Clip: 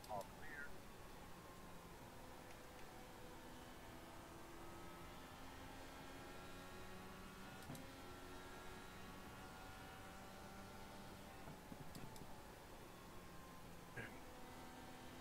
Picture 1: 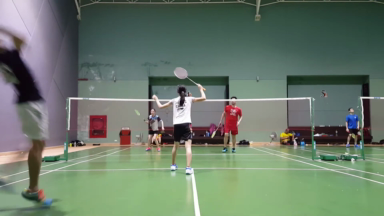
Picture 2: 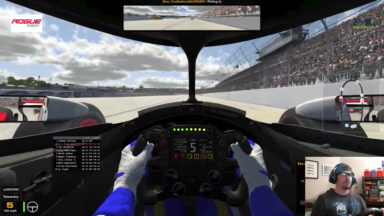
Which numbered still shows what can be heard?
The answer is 2